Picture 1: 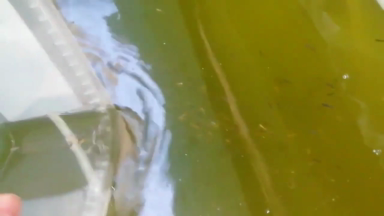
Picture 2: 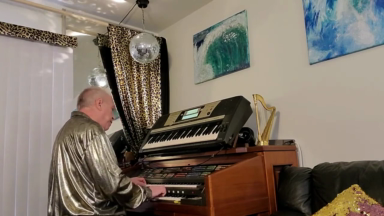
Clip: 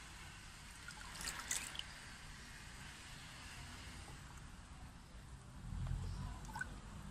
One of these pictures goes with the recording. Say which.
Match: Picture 1